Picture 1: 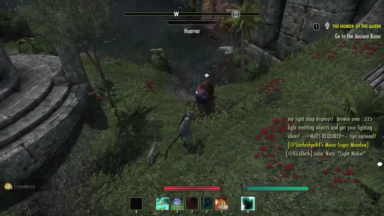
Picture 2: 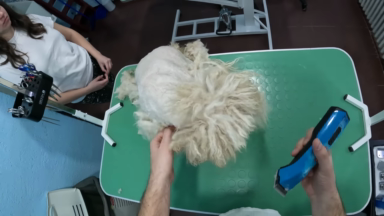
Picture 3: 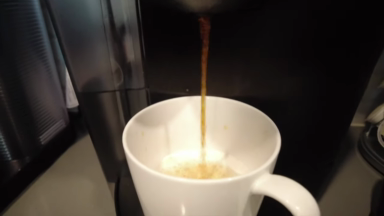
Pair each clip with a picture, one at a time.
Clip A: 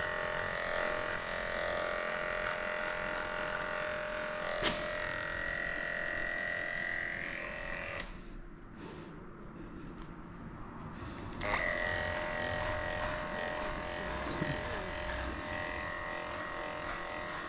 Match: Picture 2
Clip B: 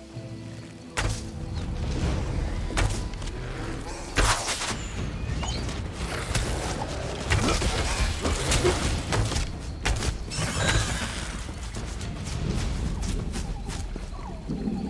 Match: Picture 1